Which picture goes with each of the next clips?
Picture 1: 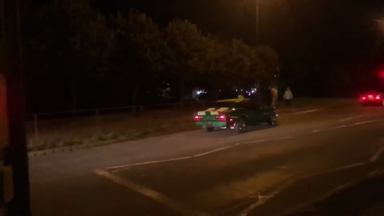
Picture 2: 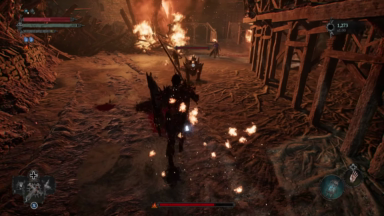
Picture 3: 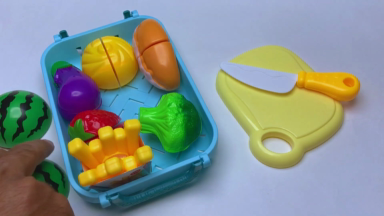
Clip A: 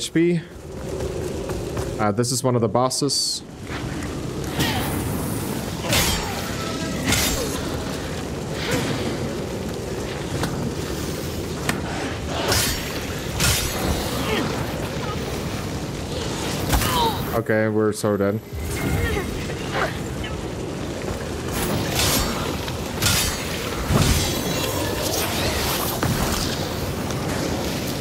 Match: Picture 2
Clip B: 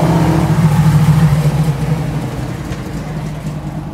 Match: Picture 1